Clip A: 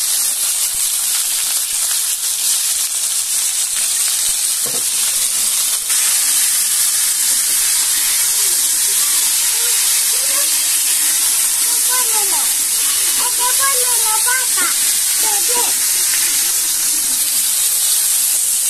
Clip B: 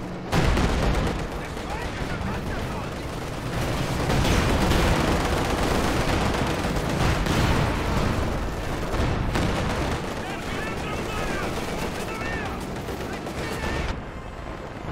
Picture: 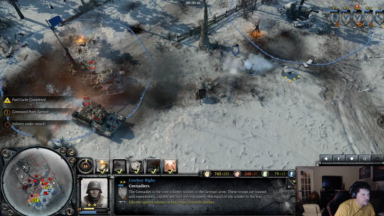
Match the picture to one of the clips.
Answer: B